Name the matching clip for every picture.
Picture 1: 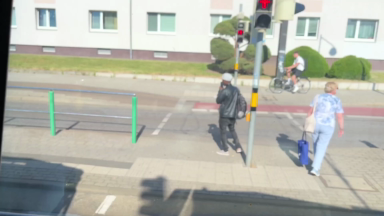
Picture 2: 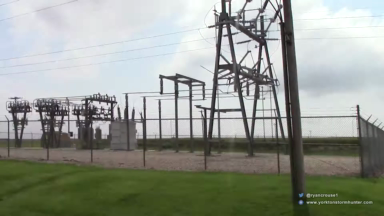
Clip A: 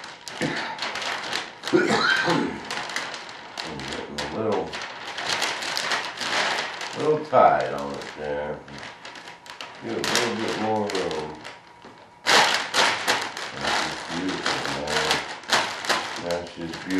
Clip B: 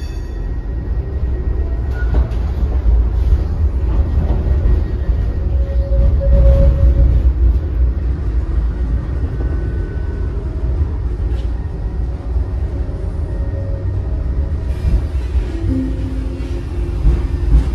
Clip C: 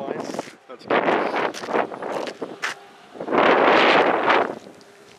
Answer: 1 B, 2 C